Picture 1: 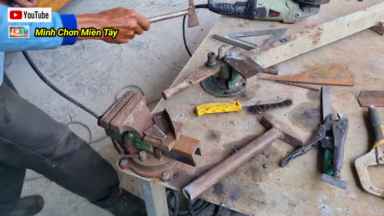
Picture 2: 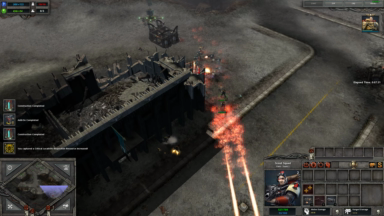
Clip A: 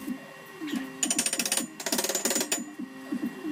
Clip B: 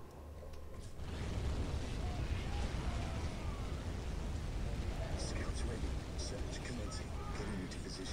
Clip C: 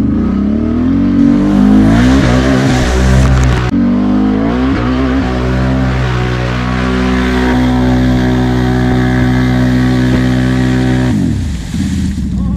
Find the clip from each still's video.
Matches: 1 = A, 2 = B